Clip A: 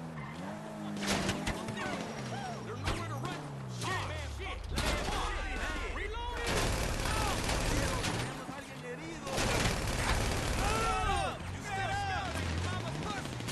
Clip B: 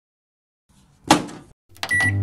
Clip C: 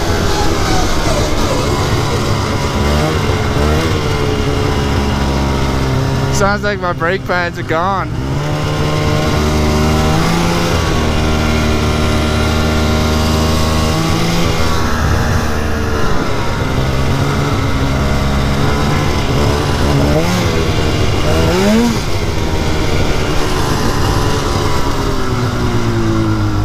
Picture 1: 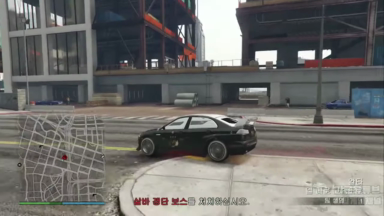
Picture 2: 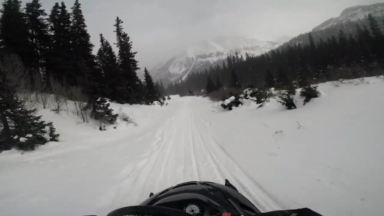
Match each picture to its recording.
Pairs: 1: A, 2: C